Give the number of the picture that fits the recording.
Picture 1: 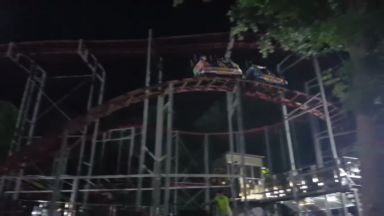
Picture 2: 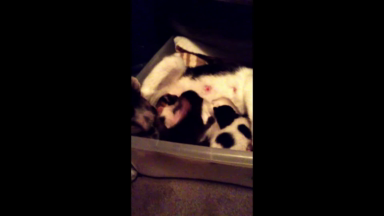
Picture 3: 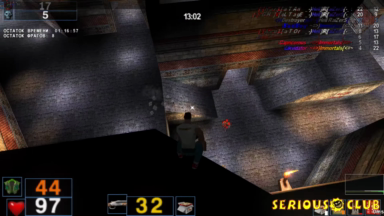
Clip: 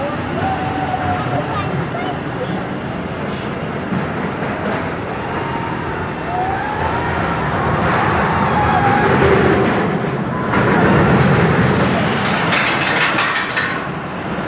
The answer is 1